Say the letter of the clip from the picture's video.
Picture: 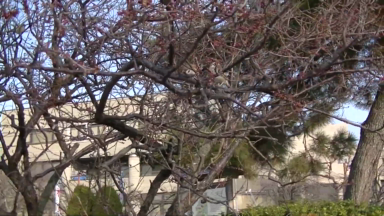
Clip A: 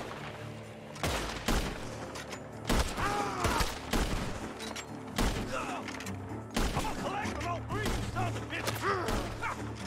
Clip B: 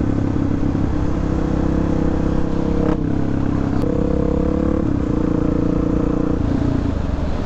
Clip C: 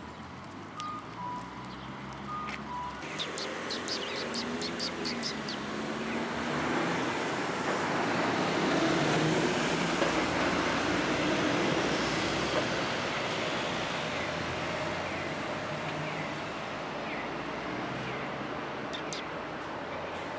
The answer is C